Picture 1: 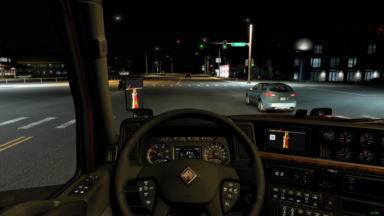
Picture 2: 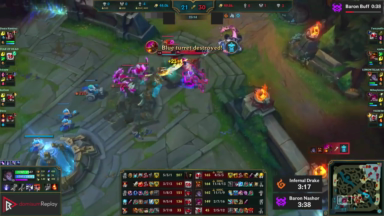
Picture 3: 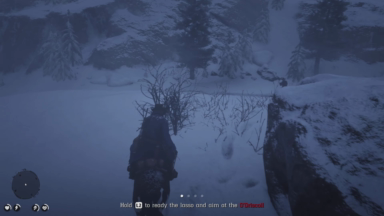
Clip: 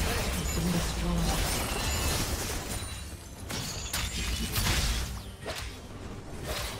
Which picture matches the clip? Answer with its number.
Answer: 2